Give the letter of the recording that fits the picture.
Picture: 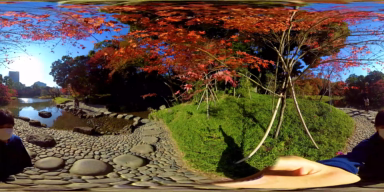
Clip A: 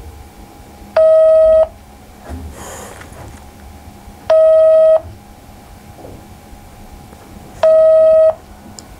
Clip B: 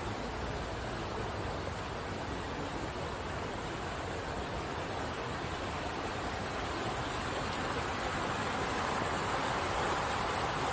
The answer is B